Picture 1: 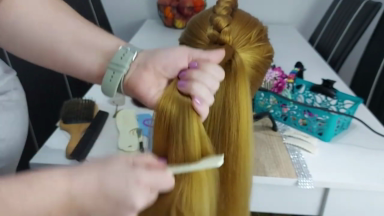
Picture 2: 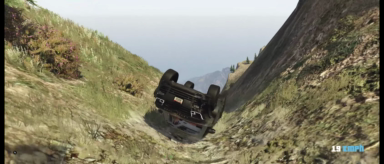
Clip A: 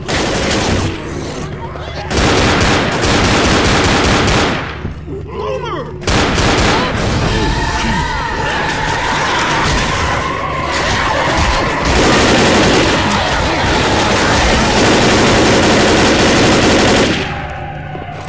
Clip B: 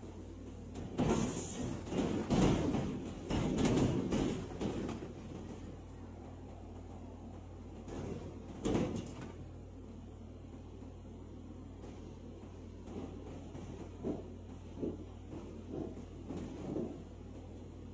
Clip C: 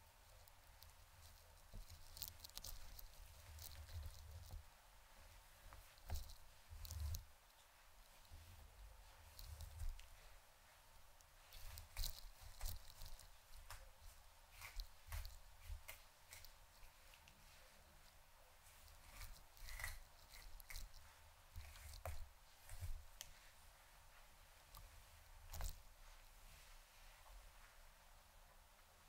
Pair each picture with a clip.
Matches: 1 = C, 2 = B